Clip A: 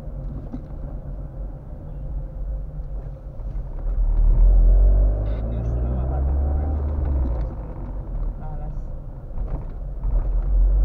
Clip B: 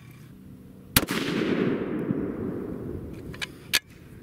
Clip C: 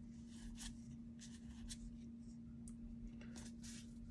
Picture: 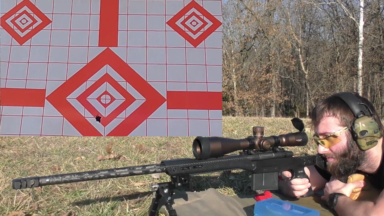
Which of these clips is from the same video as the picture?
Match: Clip B